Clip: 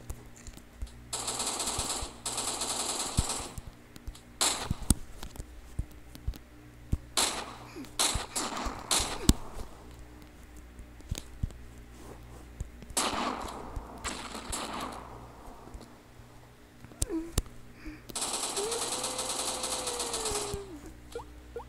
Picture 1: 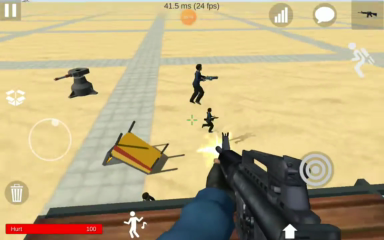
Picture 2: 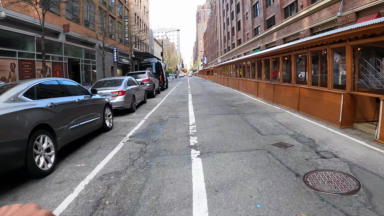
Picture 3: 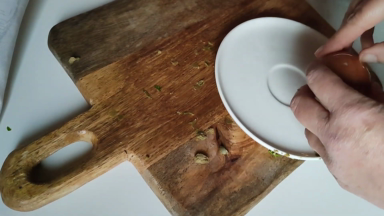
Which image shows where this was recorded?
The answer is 1